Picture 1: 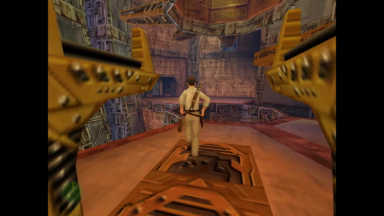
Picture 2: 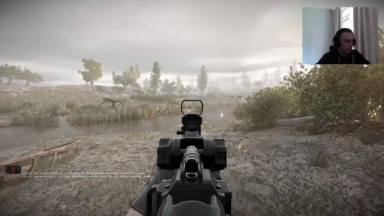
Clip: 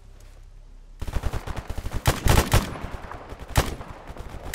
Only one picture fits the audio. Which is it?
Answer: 2